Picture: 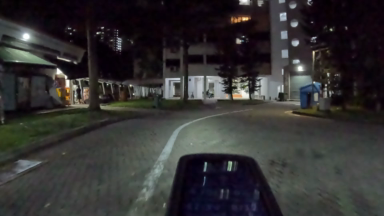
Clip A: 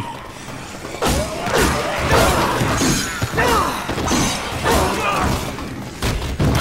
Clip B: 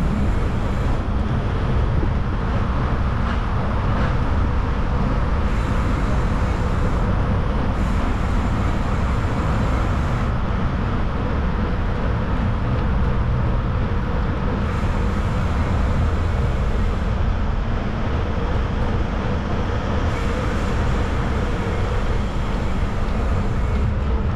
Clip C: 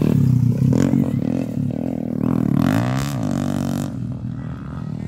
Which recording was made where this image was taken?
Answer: B